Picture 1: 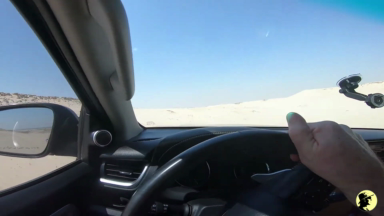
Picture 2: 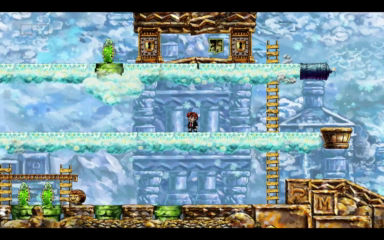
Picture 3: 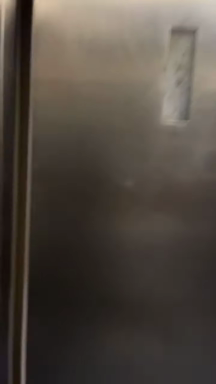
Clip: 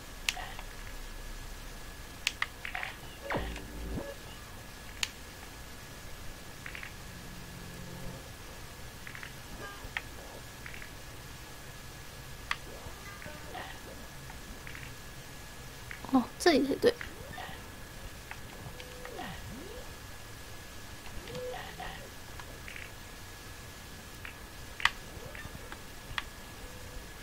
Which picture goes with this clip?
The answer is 2